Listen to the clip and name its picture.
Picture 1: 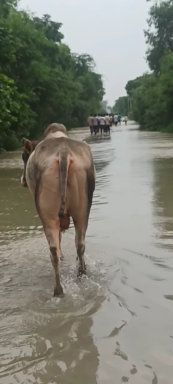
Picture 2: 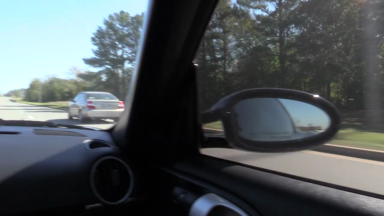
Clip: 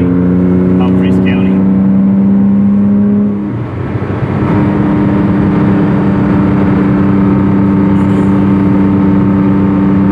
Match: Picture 2